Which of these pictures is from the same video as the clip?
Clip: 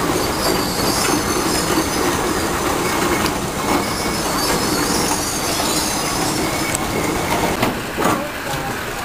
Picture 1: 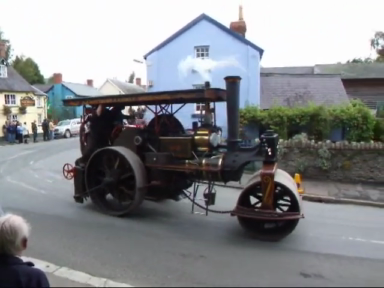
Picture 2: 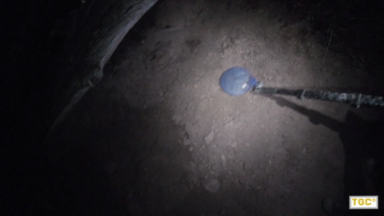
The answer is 1